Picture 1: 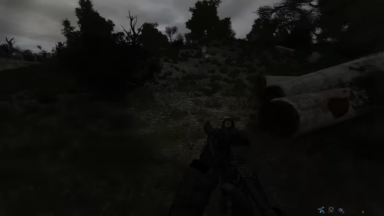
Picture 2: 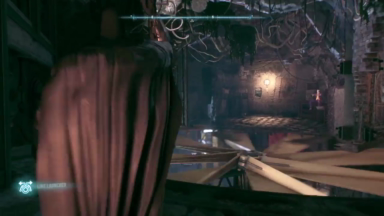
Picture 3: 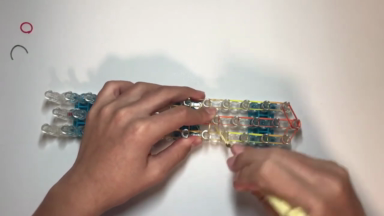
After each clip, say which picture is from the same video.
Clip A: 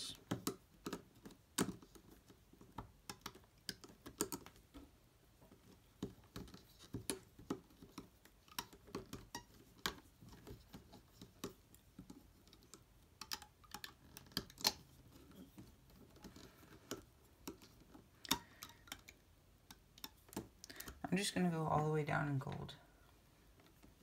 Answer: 3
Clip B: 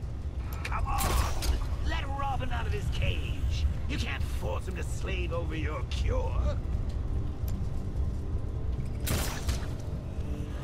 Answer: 2